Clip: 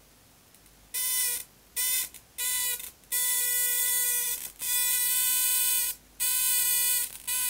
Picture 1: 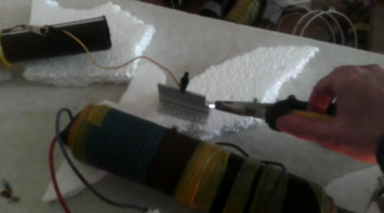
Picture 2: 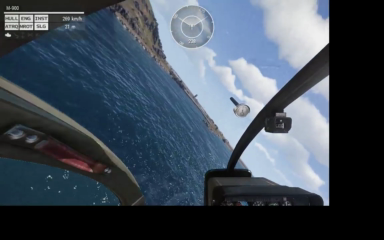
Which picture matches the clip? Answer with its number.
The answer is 1